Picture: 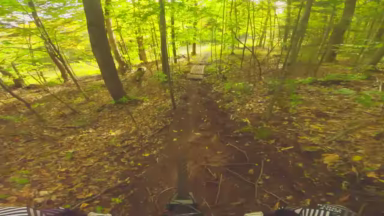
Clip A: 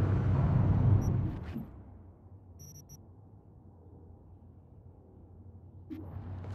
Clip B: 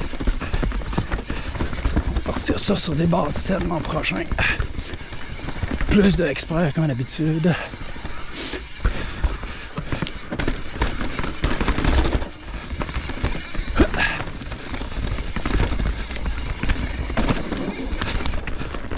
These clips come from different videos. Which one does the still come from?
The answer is B